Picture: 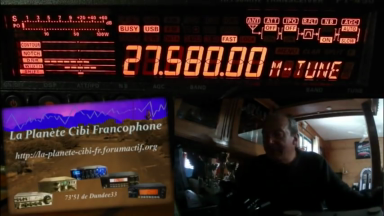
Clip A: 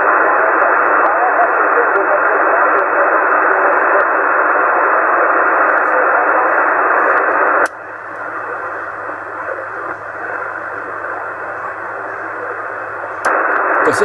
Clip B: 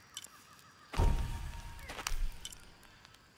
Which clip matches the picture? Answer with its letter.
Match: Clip A